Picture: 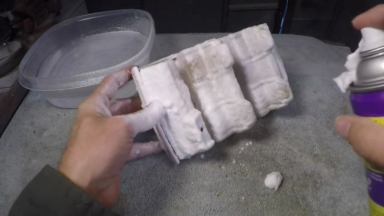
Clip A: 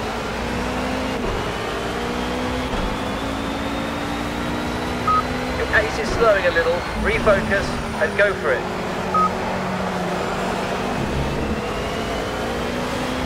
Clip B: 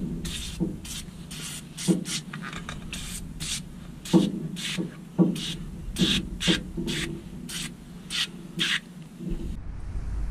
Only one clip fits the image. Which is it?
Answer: B